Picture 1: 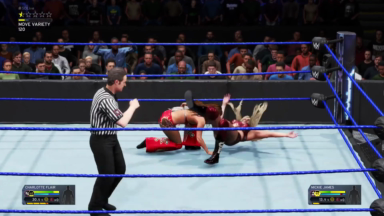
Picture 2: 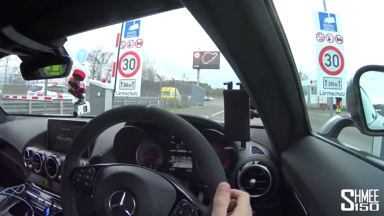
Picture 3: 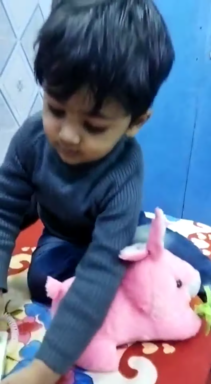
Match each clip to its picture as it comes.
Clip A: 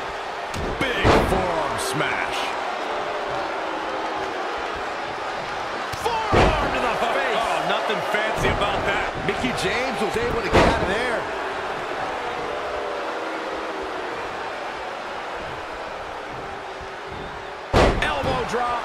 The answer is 1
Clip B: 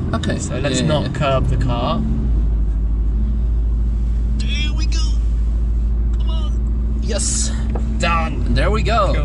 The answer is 2